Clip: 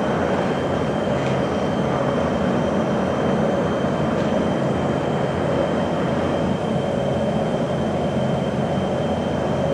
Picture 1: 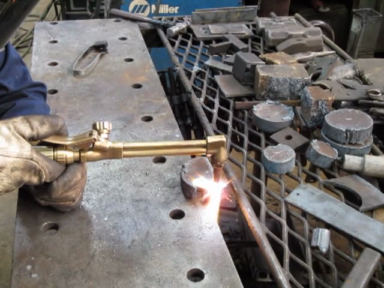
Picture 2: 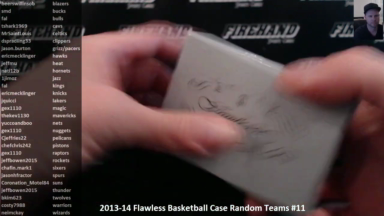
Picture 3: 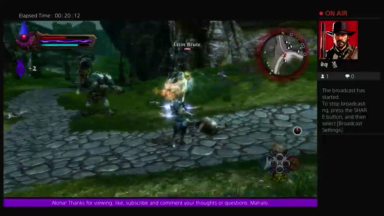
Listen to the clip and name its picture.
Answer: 1